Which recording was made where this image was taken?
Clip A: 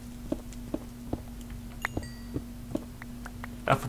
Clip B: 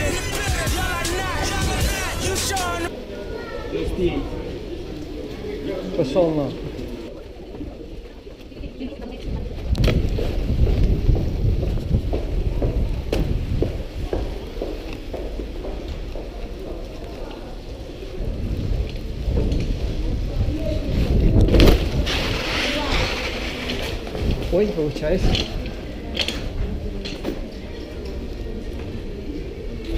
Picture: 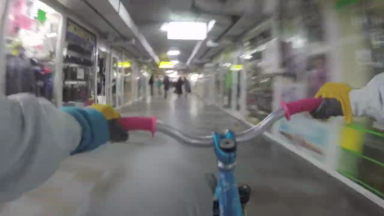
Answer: B